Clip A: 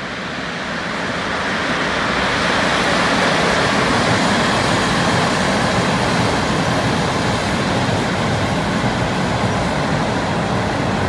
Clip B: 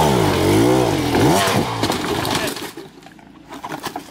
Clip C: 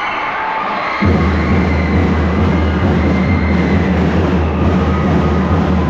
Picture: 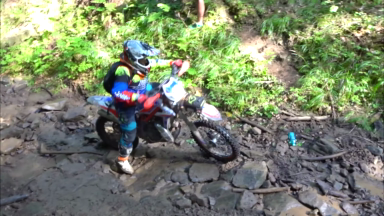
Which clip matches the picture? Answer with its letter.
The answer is B